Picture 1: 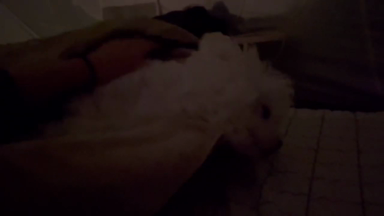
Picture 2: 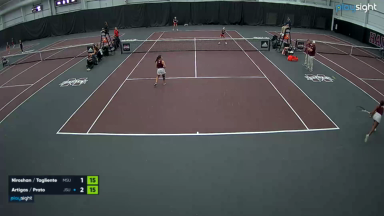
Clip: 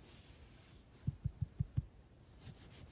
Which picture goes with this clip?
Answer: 1